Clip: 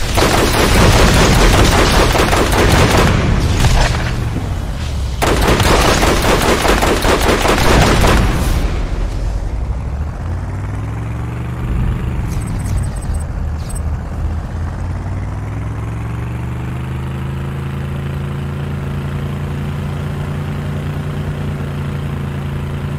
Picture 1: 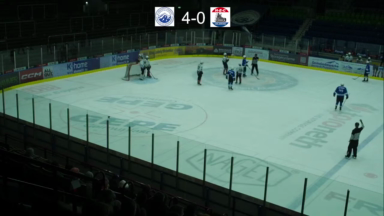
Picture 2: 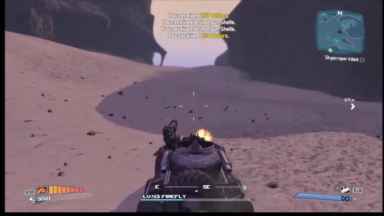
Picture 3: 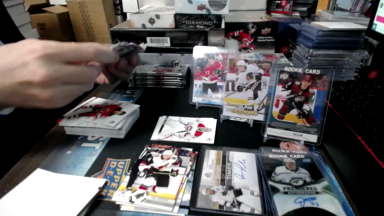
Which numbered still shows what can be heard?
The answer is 2